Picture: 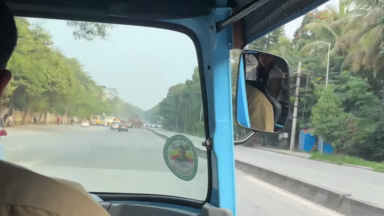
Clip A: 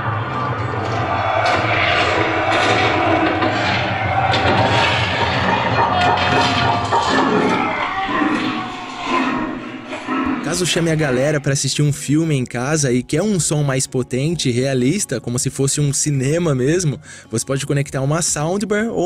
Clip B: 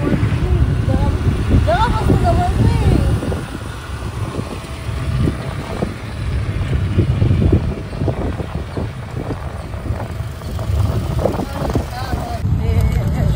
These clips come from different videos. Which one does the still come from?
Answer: B